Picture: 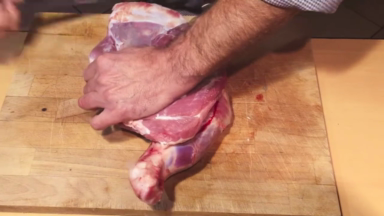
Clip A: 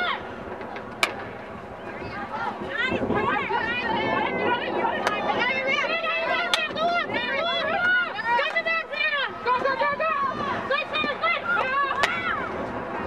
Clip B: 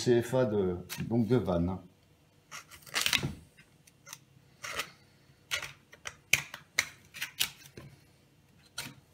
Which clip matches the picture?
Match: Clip B